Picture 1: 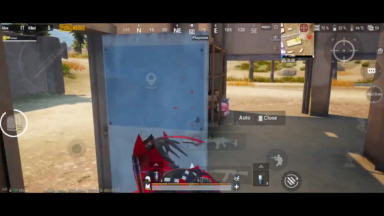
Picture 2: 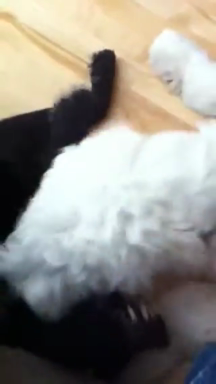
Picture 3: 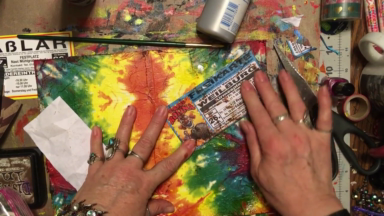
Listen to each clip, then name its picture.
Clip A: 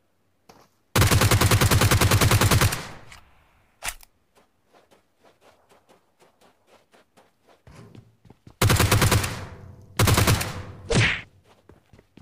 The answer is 1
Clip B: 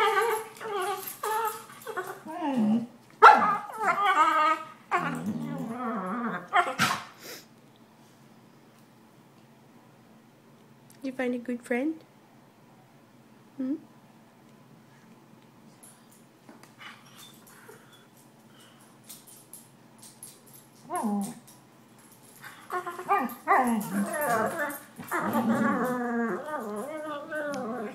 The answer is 2